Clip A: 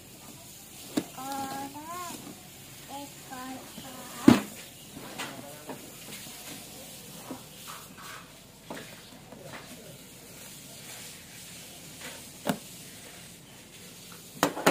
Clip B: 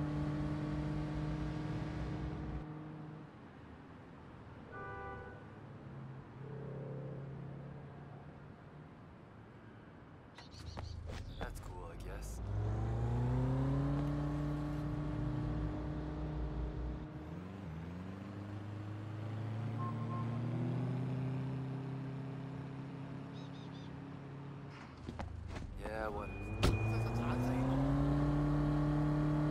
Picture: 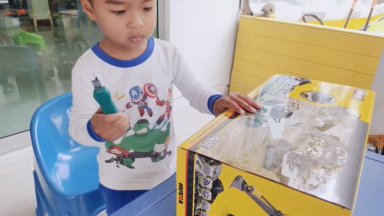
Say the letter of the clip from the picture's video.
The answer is A